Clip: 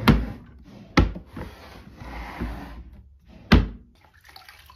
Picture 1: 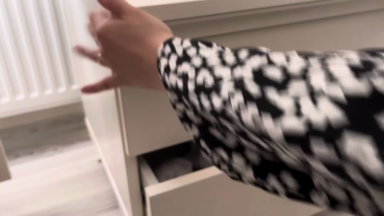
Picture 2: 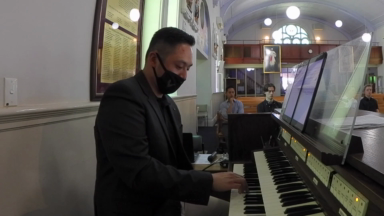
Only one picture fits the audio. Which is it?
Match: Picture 1